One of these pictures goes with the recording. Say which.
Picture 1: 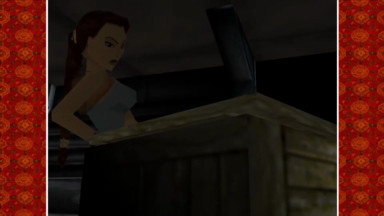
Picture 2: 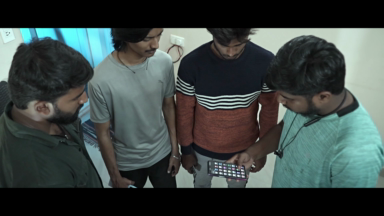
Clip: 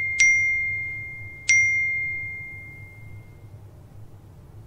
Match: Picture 2